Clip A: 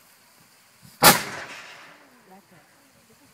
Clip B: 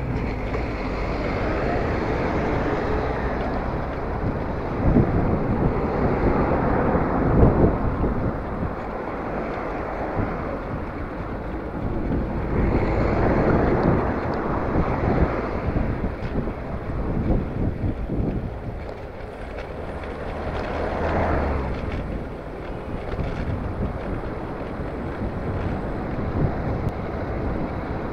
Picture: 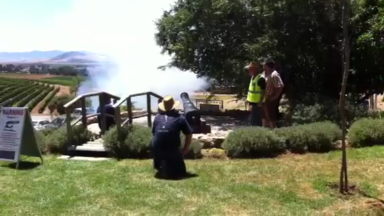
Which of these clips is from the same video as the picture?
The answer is A